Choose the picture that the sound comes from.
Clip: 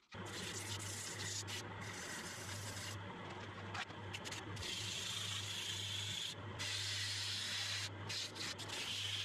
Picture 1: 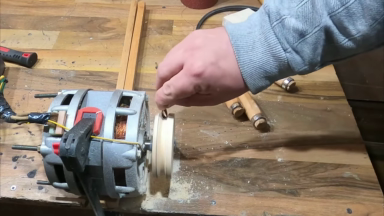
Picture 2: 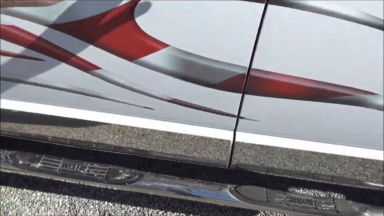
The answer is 1